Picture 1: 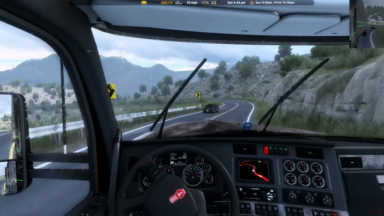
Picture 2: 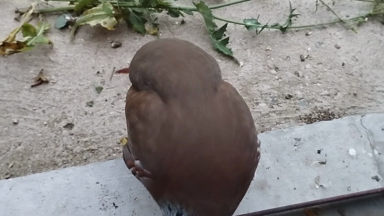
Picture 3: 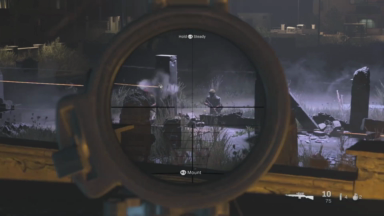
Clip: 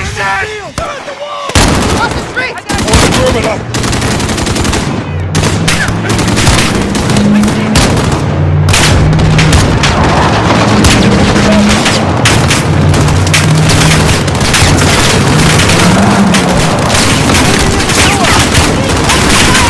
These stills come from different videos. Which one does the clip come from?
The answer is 3